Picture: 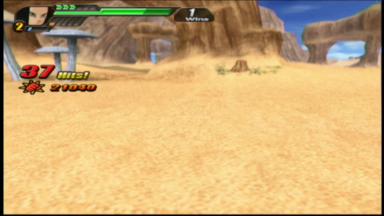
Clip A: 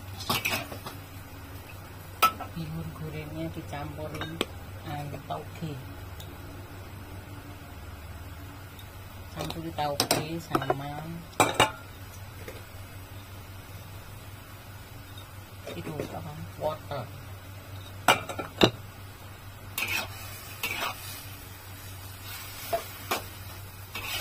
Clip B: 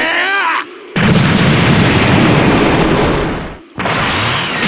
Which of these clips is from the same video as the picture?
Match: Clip B